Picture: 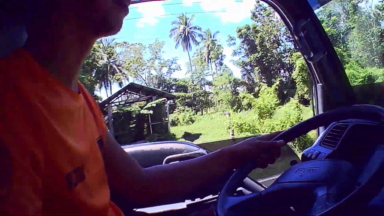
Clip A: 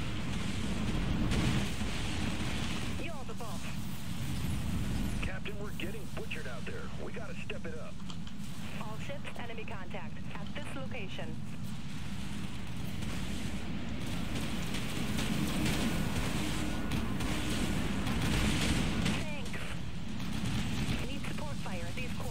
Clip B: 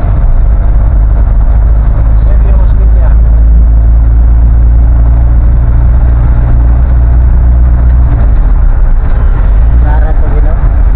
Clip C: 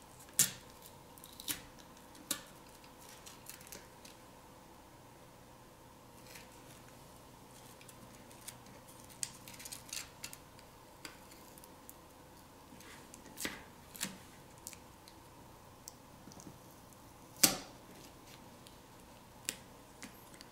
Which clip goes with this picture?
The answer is B